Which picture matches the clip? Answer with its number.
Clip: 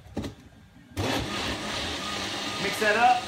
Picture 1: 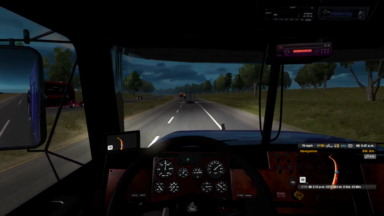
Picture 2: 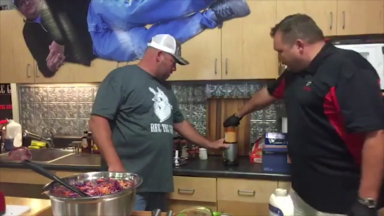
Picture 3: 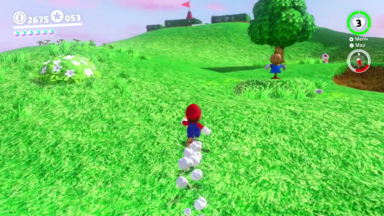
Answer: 2